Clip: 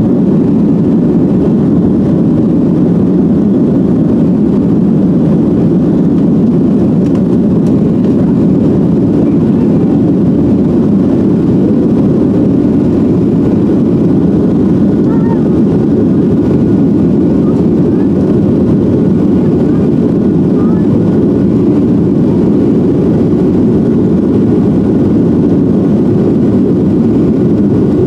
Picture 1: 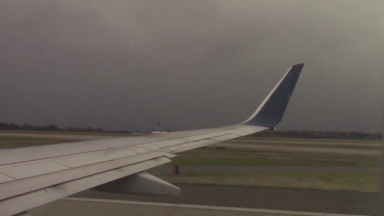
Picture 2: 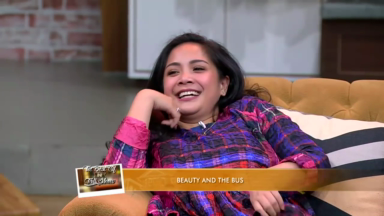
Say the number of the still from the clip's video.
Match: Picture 1